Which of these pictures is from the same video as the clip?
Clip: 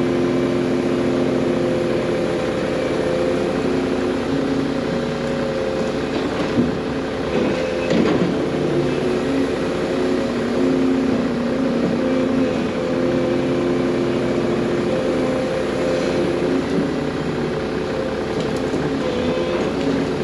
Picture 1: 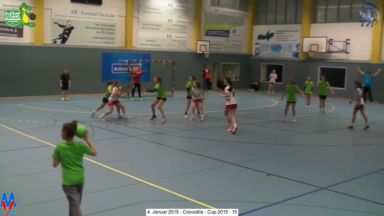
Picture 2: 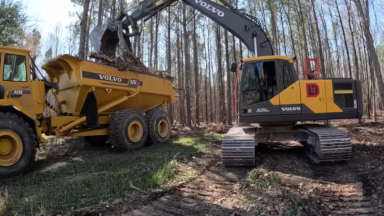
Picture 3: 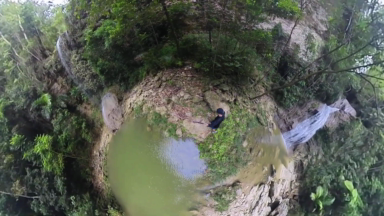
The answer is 2